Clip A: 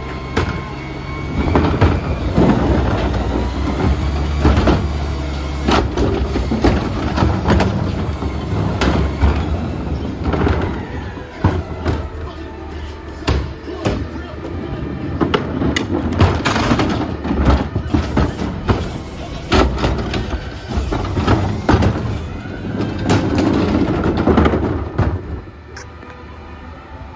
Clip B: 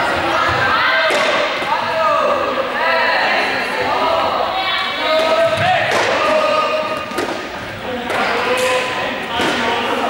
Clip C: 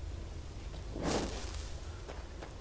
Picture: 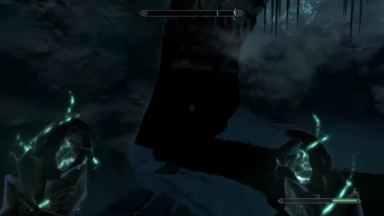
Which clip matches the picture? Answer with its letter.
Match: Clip C